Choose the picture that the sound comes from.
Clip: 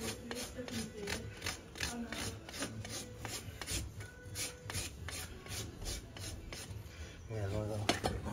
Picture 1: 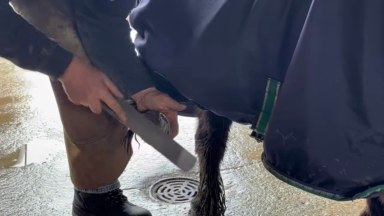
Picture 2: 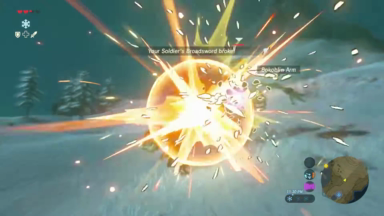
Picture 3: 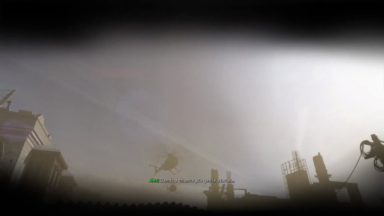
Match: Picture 1